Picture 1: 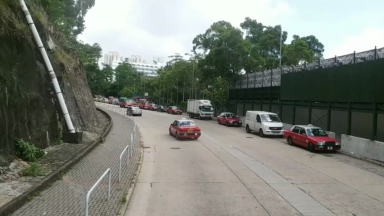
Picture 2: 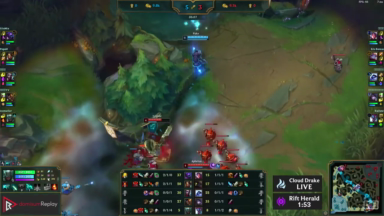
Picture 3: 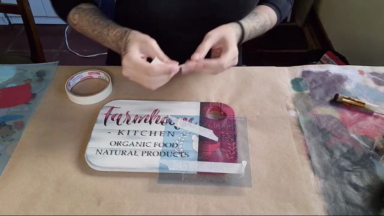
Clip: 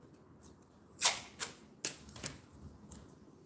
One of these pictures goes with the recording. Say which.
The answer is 3